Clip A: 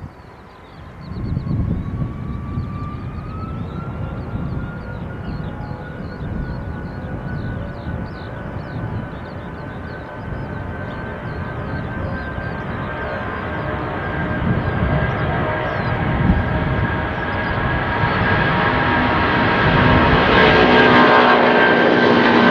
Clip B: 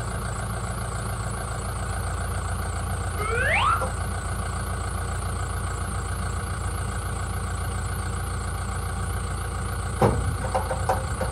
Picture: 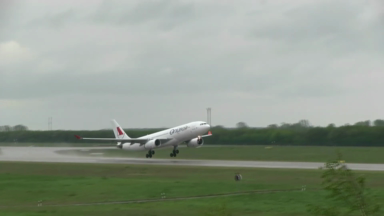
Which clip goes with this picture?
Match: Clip A